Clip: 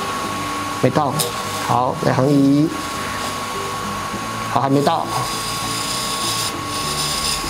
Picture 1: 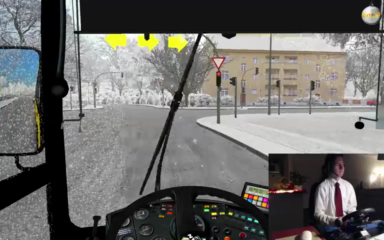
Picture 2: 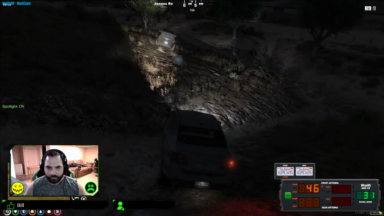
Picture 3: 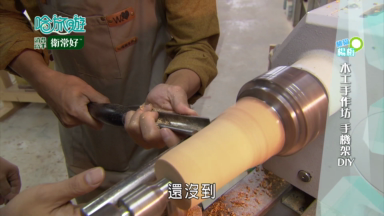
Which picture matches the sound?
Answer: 3